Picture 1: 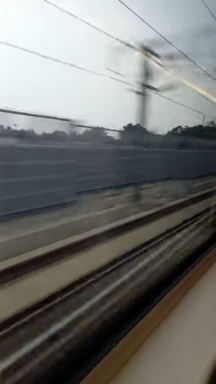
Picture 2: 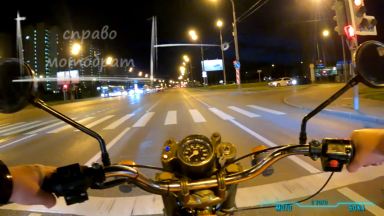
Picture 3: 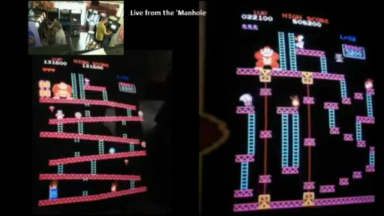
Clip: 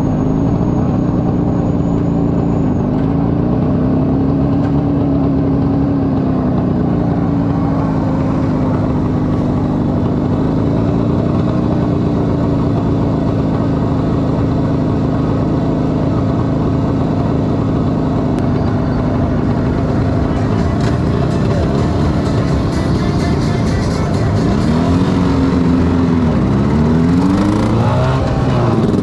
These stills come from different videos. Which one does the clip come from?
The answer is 2